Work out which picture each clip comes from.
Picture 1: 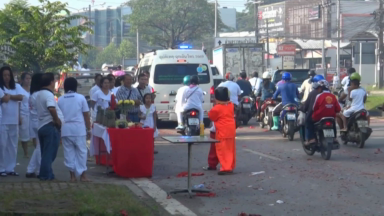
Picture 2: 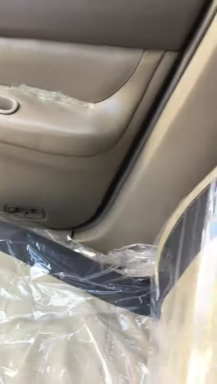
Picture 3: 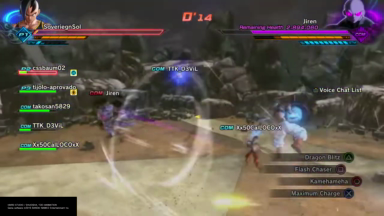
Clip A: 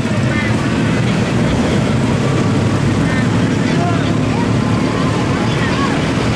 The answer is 1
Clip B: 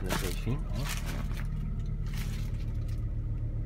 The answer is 2